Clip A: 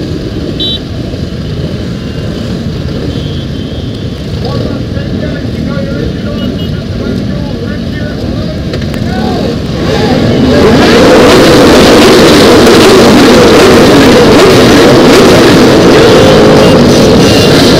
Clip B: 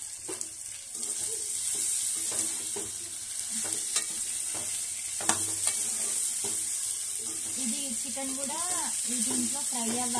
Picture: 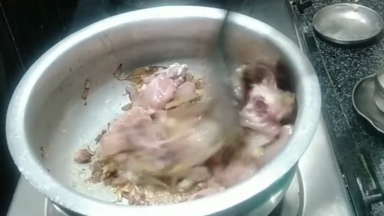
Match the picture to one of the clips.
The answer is B